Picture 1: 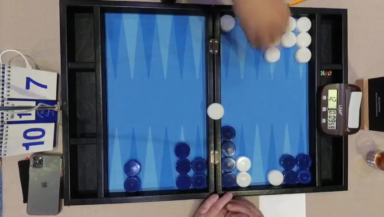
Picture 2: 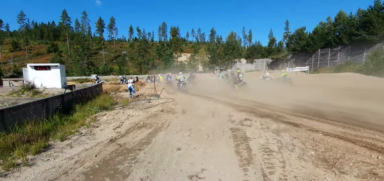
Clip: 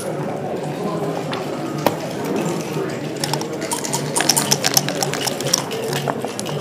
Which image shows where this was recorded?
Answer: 1